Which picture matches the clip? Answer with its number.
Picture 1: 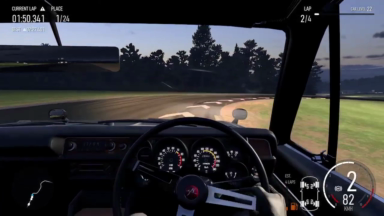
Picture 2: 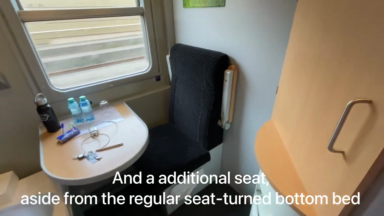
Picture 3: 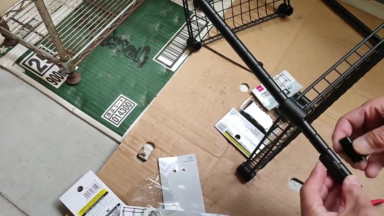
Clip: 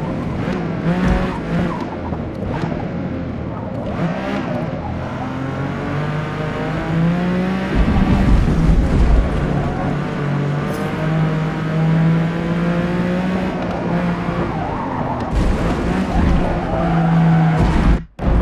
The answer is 1